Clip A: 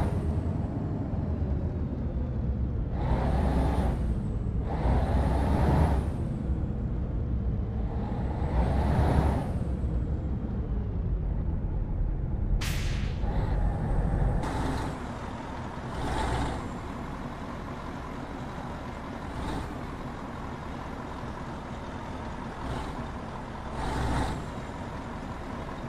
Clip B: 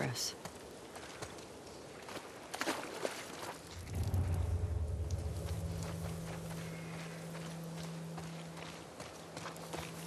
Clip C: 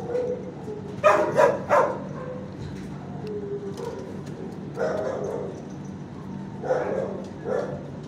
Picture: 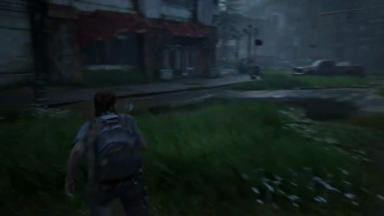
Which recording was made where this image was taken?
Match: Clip B